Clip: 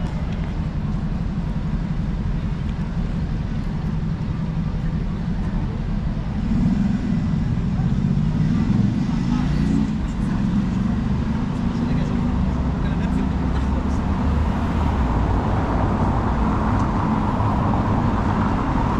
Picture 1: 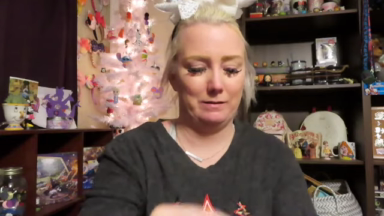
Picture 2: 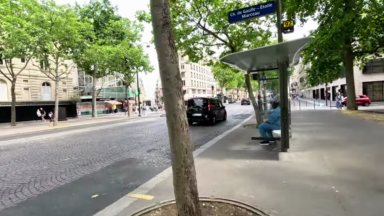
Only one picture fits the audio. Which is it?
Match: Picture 2